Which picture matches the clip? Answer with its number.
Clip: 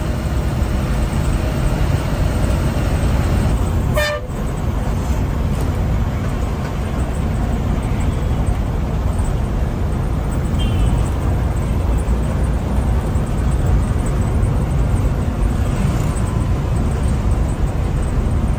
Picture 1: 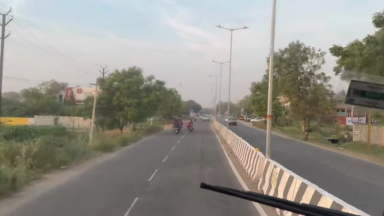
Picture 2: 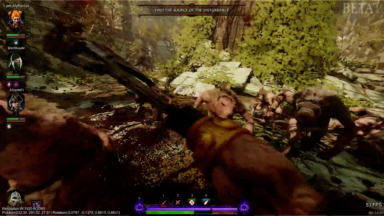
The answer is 1